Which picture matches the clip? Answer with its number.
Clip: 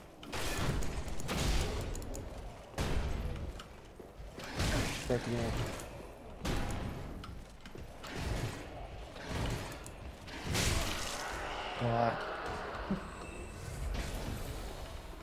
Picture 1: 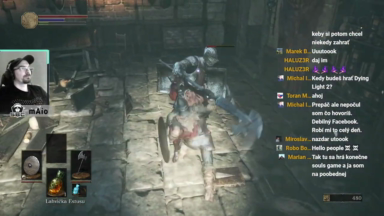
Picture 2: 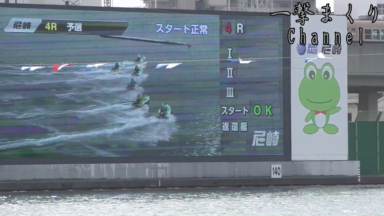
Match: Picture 1